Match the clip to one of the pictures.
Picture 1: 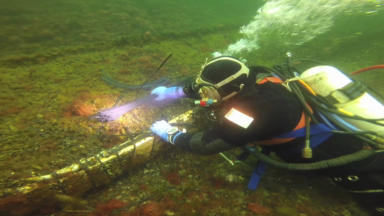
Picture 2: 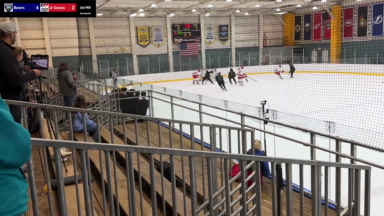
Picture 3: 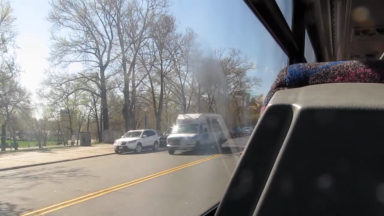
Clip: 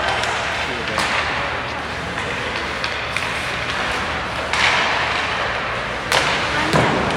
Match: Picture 2